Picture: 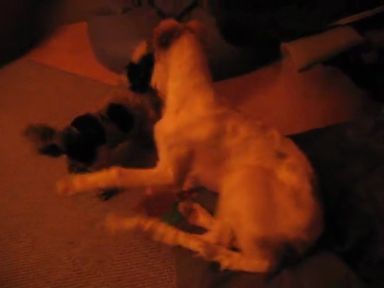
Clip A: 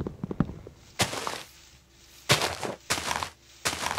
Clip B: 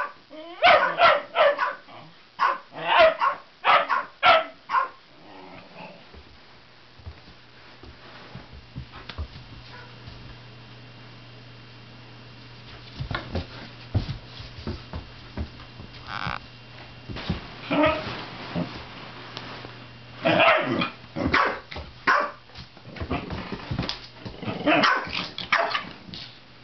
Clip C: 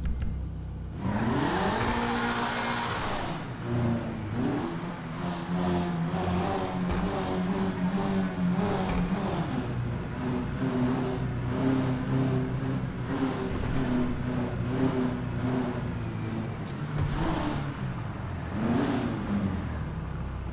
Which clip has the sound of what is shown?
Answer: B